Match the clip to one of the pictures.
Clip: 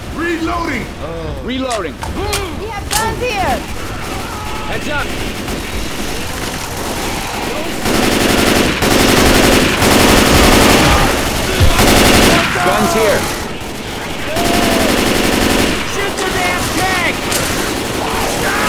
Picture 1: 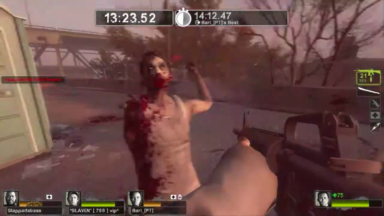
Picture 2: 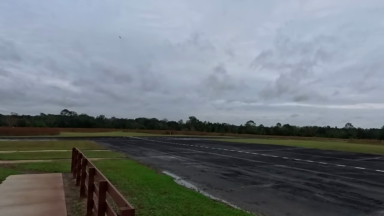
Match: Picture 1